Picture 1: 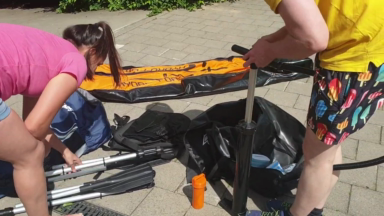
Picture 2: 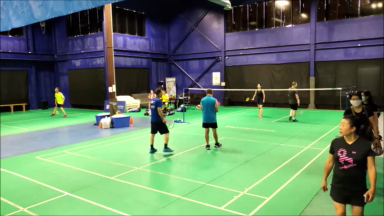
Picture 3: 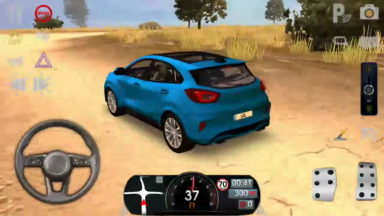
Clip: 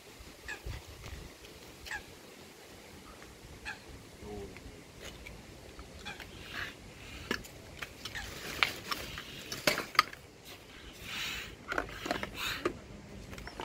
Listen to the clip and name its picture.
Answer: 1